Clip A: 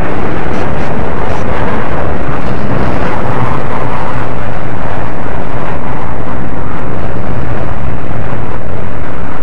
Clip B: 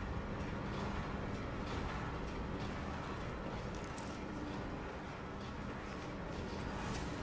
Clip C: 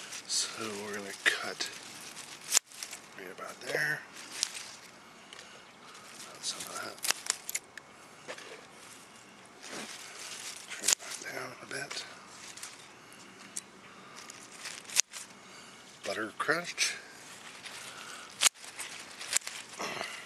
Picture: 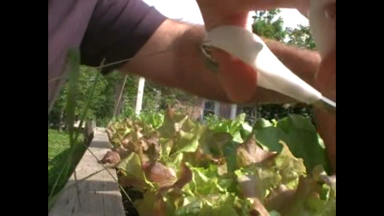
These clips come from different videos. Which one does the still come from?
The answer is C